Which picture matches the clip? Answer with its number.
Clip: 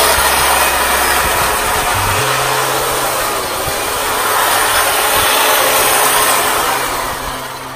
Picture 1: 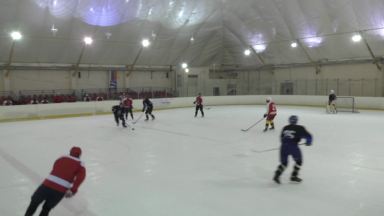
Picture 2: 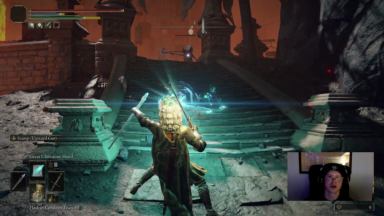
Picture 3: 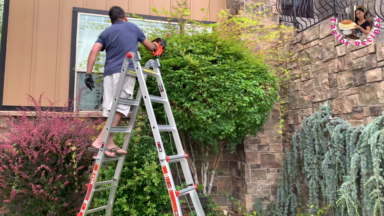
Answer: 3